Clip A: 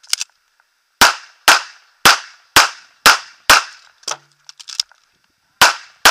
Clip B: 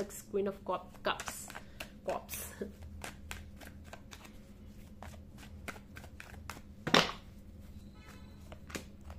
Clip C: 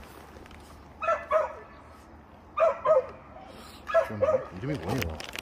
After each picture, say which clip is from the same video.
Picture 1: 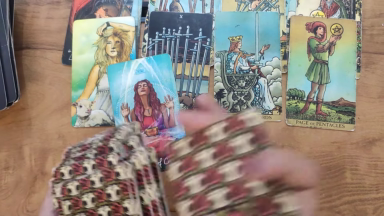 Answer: B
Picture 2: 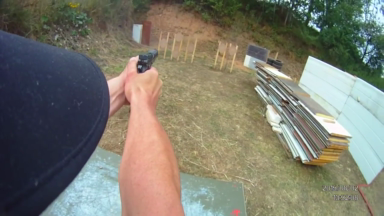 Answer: A